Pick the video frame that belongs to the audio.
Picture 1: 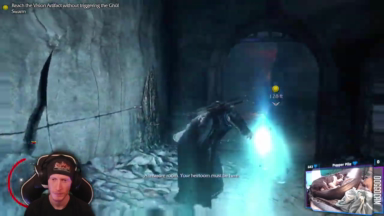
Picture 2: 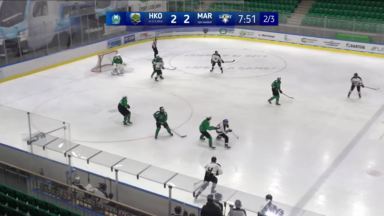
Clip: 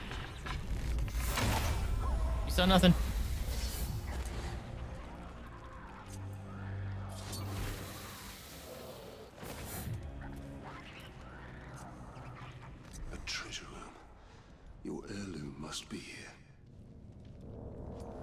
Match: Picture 1